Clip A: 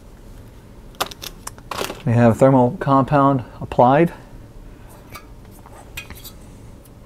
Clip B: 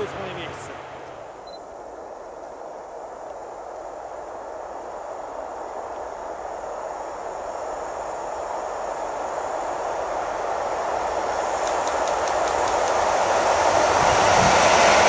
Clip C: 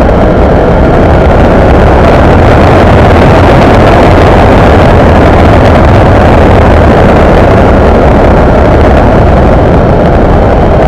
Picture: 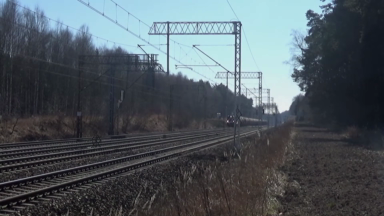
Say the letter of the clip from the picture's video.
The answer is B